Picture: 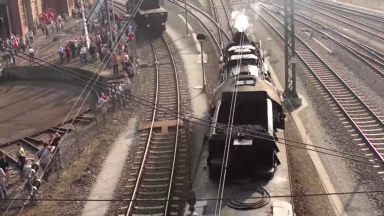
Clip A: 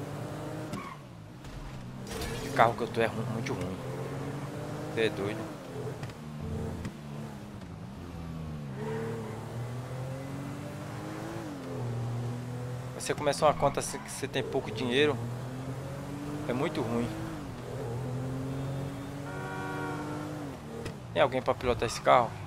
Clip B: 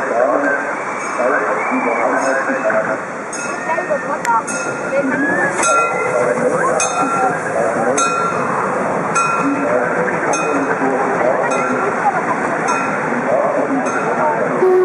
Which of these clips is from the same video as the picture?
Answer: B